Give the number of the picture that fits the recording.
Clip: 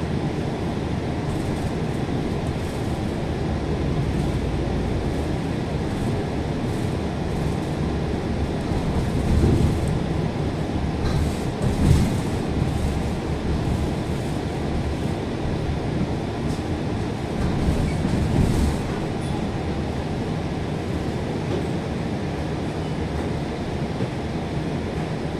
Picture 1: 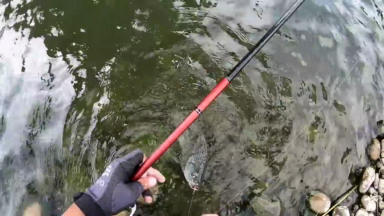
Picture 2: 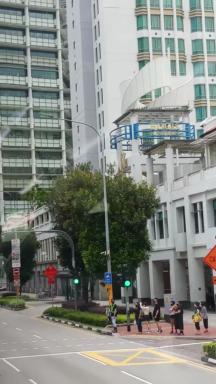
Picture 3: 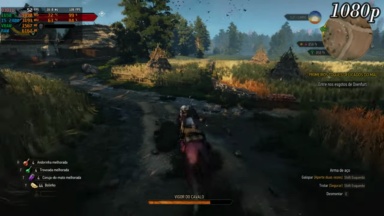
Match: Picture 2